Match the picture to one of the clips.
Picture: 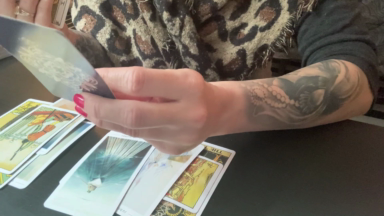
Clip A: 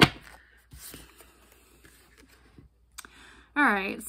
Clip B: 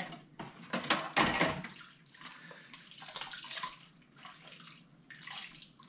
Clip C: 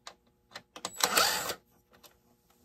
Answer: A